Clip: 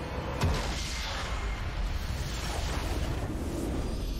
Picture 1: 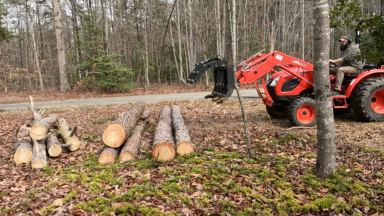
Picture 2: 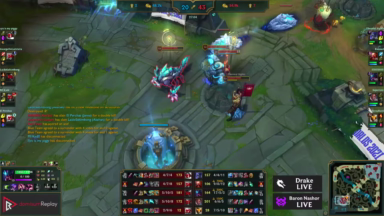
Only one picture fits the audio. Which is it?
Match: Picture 2